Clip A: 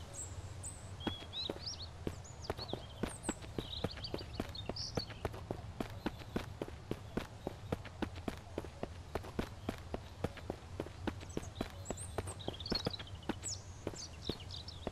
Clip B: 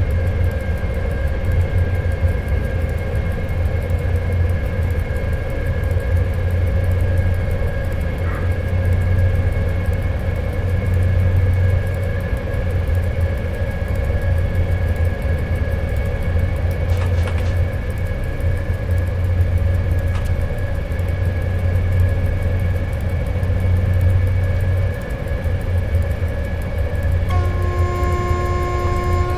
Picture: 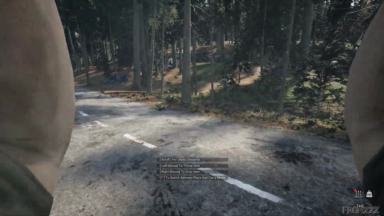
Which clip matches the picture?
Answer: A